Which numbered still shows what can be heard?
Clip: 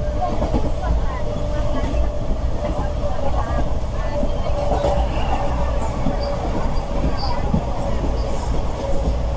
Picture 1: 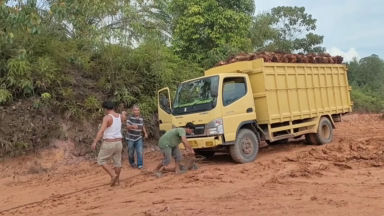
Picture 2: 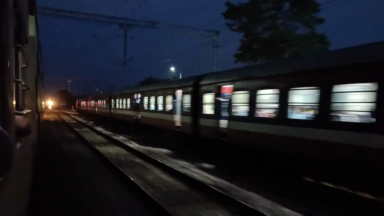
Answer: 2